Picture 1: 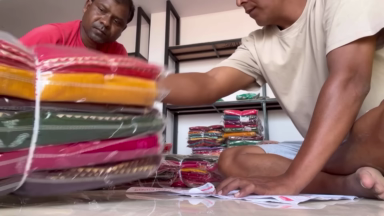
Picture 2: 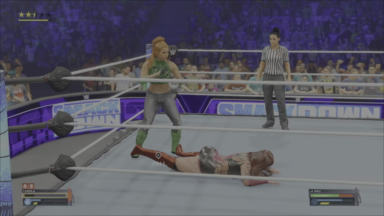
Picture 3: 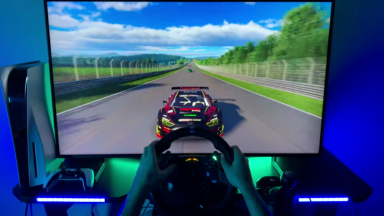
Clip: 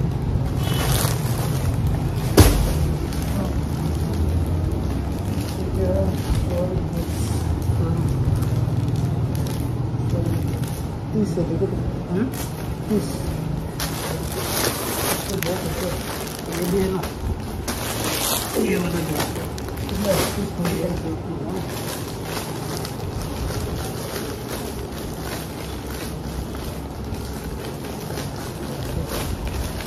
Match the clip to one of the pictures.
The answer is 1